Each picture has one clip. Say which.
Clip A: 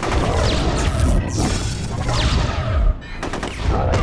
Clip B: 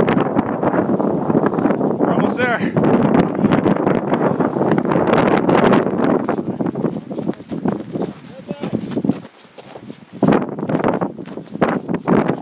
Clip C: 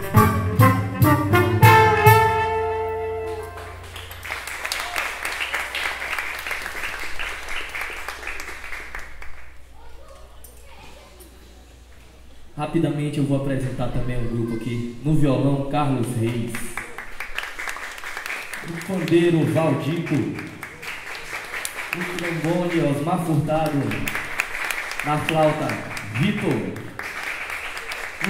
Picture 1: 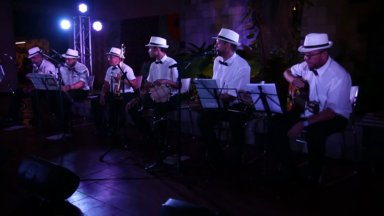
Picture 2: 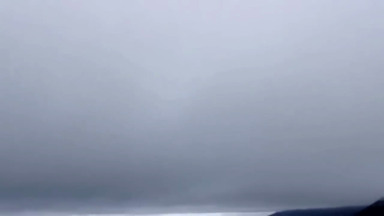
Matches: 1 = C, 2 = B